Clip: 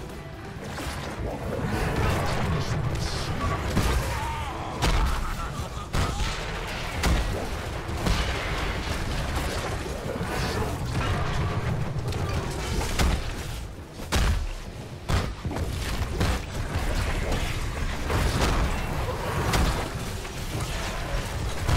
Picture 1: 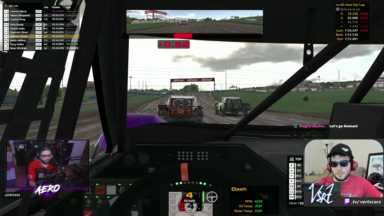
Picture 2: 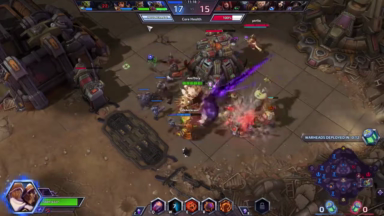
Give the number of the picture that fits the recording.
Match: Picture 2